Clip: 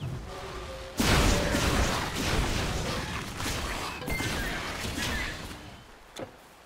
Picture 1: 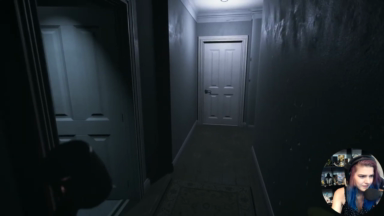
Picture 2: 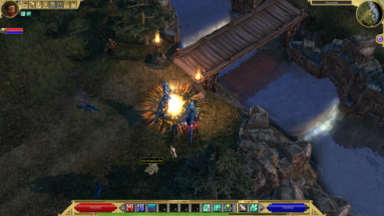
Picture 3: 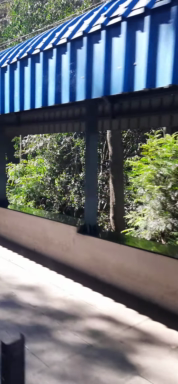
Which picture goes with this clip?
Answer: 2